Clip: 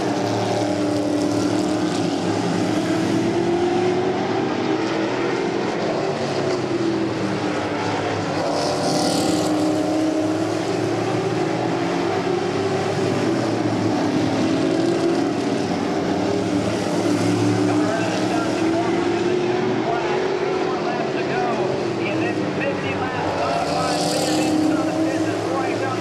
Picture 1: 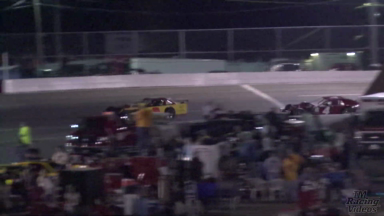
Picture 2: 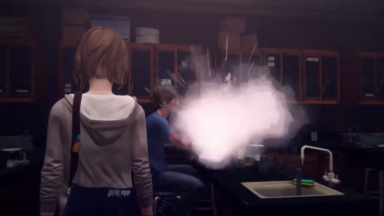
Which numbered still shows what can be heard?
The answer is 1